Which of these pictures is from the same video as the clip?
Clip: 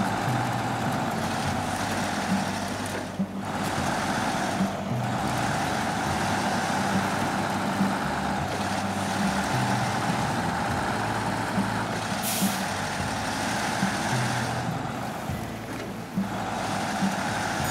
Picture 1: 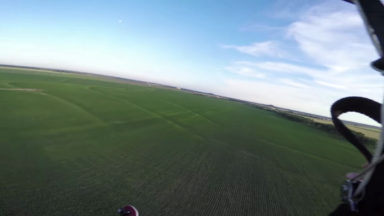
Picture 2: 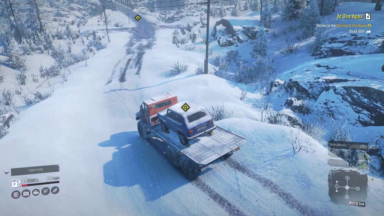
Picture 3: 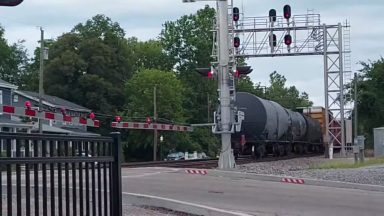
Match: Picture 2